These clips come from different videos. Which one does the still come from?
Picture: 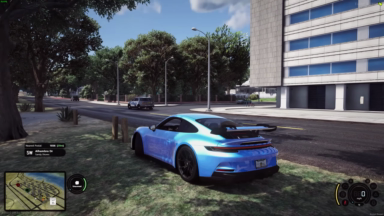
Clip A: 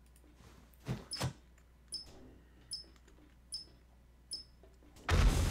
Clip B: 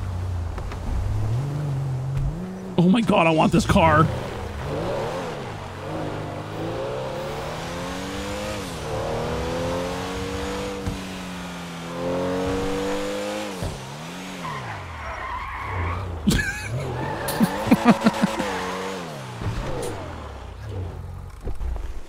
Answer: B